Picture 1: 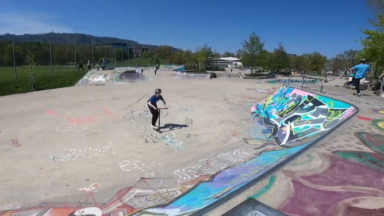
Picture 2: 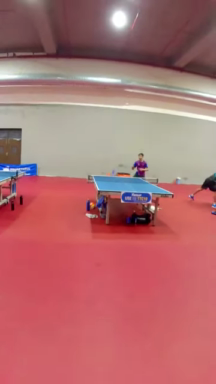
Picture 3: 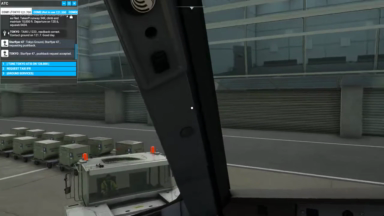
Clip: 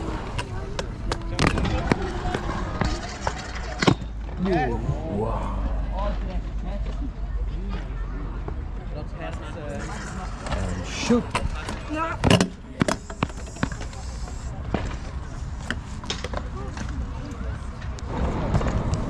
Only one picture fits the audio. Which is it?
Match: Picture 1